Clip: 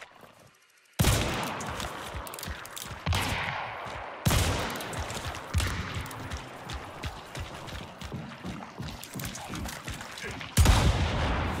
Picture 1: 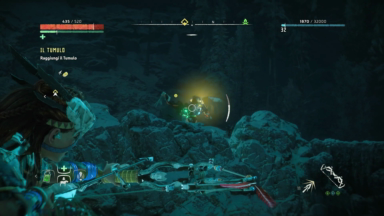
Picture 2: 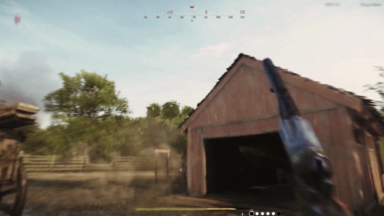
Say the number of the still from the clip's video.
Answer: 2